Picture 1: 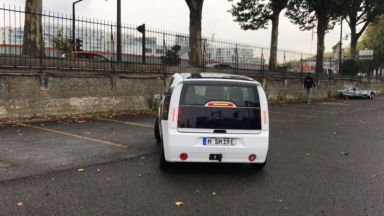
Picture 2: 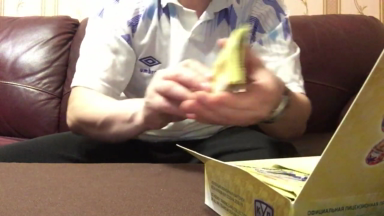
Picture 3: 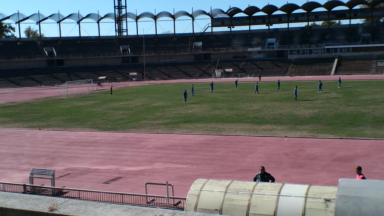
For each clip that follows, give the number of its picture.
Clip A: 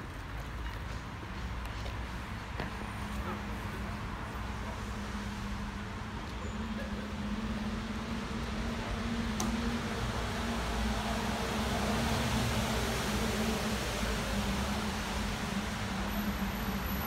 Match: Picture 1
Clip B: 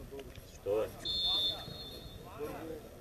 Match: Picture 3